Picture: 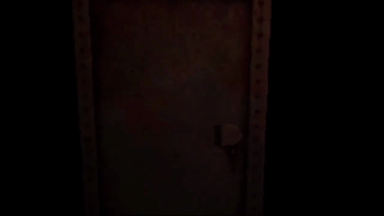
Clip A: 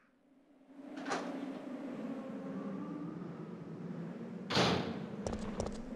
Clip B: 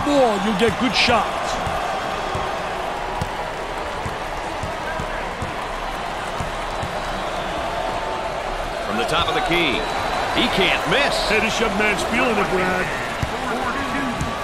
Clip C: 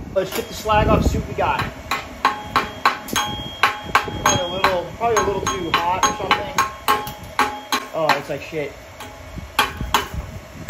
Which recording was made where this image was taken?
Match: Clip A